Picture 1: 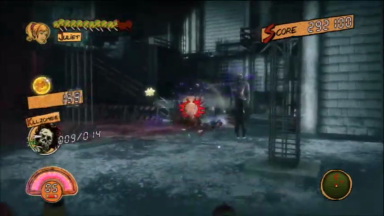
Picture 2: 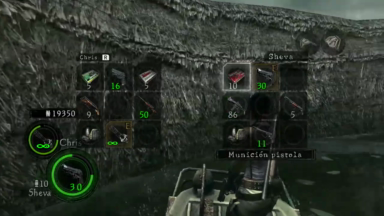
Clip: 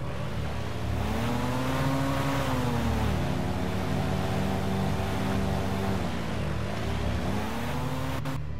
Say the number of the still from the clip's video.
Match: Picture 2